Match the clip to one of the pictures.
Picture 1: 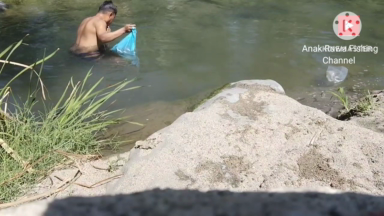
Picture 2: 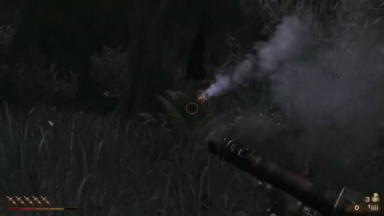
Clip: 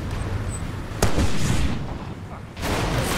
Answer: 2